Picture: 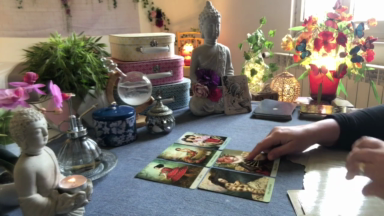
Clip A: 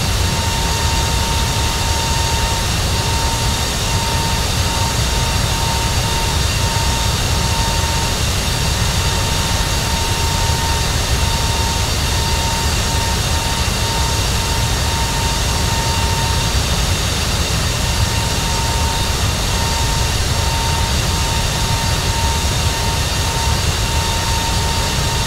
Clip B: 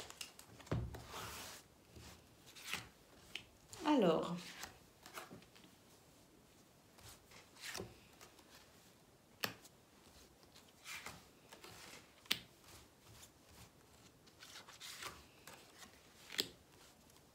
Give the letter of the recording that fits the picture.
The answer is B